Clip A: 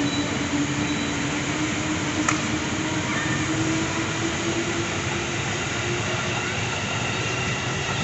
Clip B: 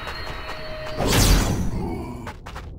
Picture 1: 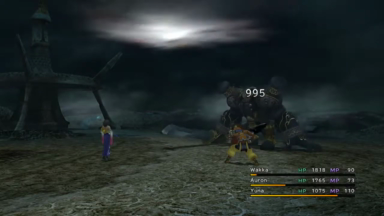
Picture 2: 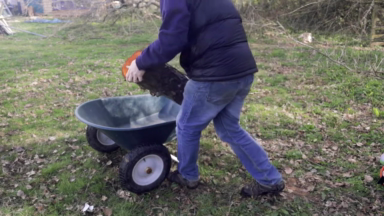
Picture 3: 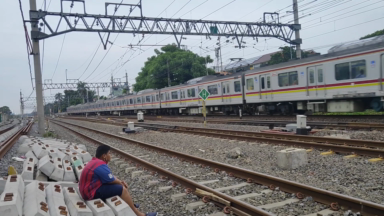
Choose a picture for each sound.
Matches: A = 3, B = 1